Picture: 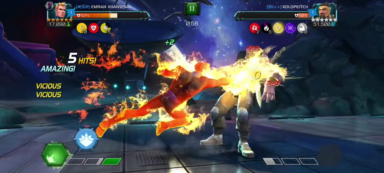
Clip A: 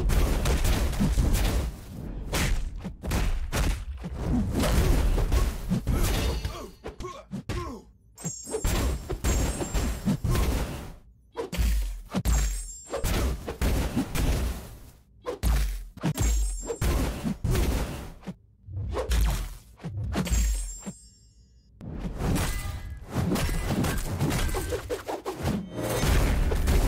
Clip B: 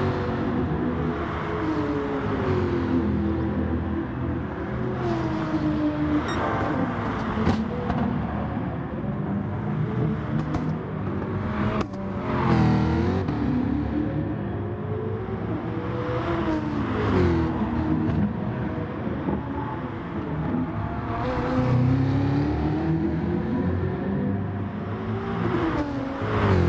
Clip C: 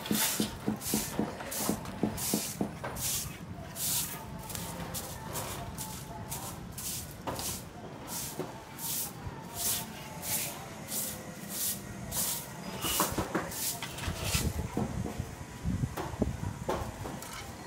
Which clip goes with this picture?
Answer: A